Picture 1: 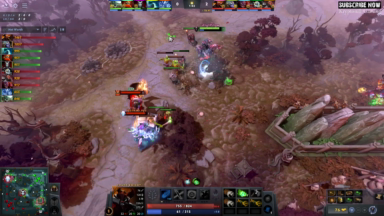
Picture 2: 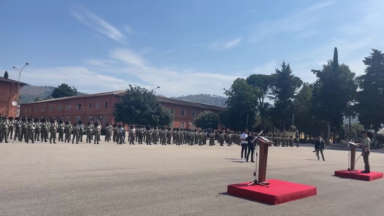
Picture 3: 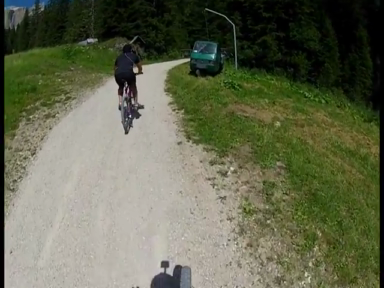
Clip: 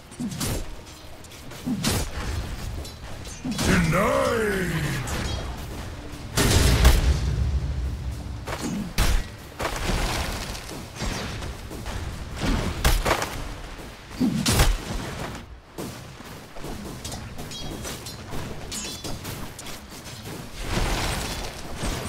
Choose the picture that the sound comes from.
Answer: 1